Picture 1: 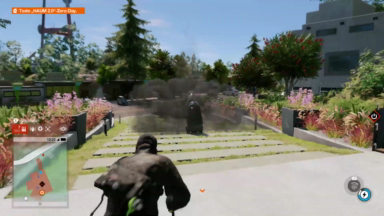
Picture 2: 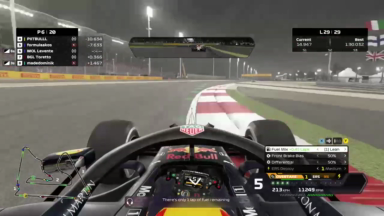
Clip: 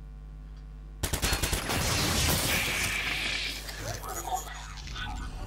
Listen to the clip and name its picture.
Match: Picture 1